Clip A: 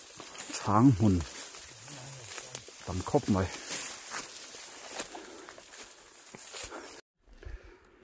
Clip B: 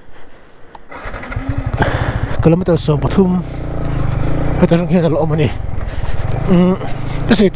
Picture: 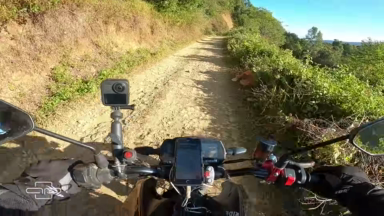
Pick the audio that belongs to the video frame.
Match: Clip B